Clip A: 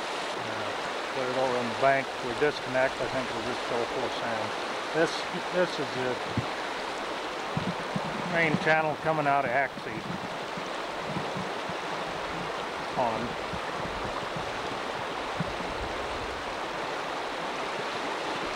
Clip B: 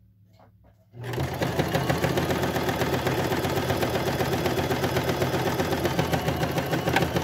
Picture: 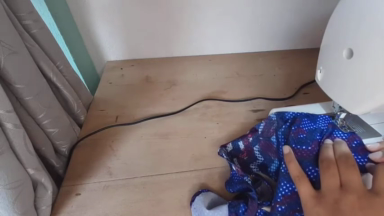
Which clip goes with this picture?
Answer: B